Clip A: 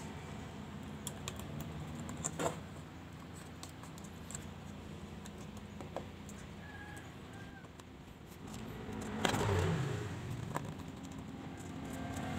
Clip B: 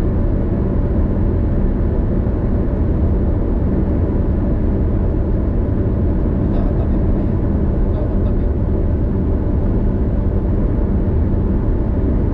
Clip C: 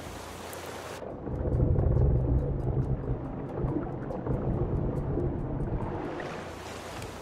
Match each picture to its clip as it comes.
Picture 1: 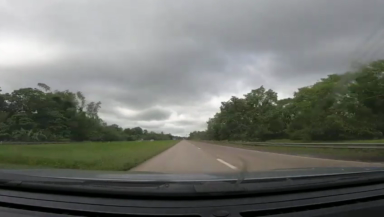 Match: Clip B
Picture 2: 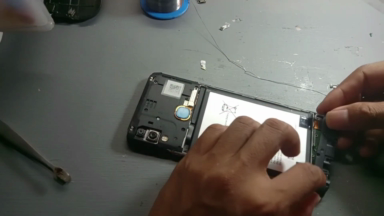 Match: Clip A